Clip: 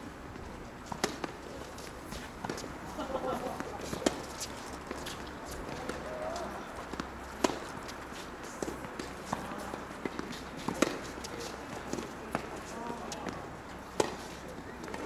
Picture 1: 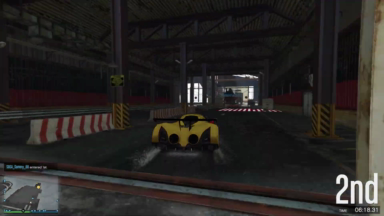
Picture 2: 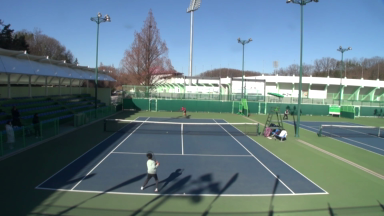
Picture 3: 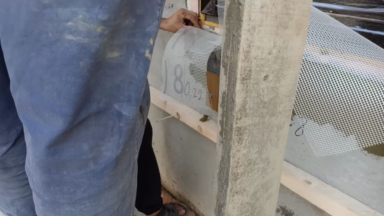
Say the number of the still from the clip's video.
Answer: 2